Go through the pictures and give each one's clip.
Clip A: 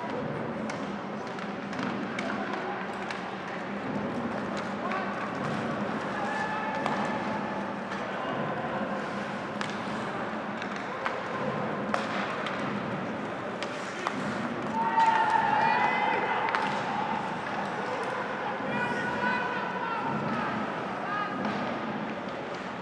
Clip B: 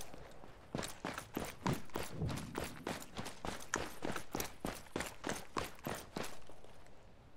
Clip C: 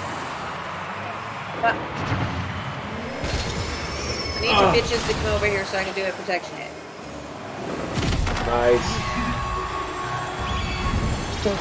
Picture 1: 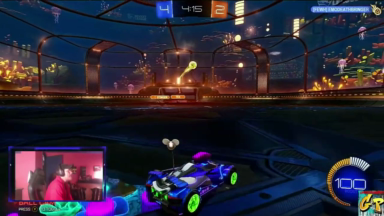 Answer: C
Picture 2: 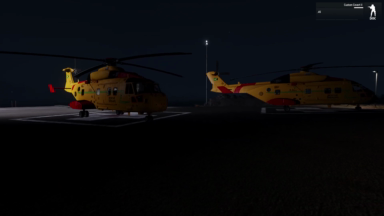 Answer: B